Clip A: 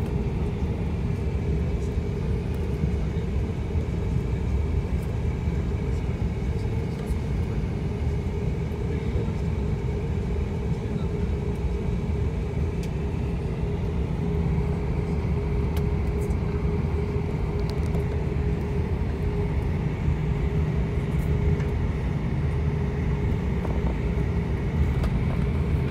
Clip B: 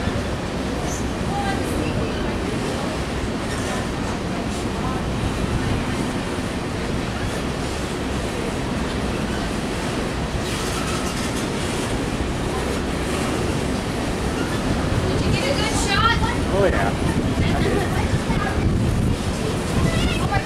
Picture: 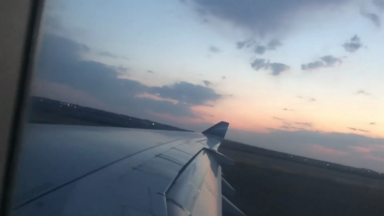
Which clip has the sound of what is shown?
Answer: A